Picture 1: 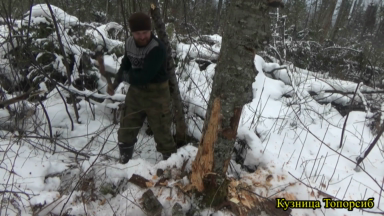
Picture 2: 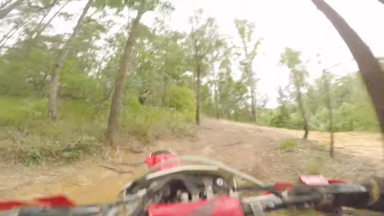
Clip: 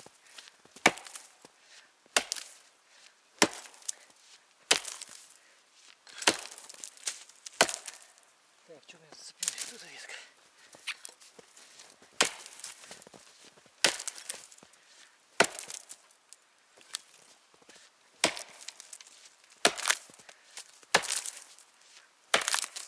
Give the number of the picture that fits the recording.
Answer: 1